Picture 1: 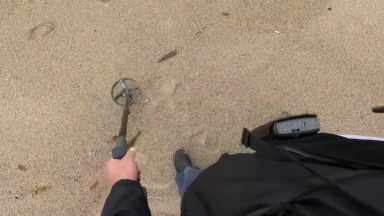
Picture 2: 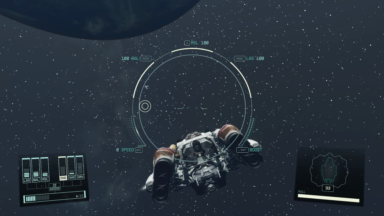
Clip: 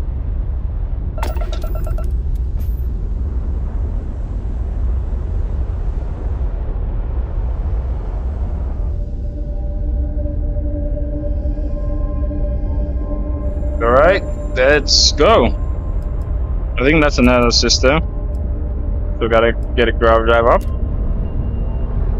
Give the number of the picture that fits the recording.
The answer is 2